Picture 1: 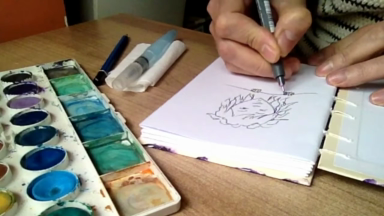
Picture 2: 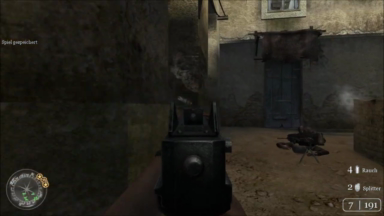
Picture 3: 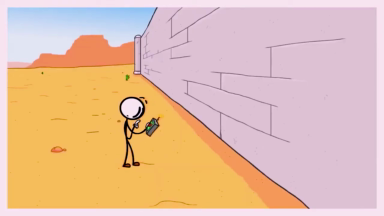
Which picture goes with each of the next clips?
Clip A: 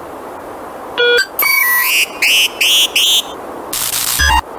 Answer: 3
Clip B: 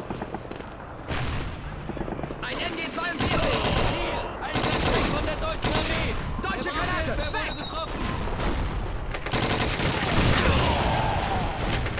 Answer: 2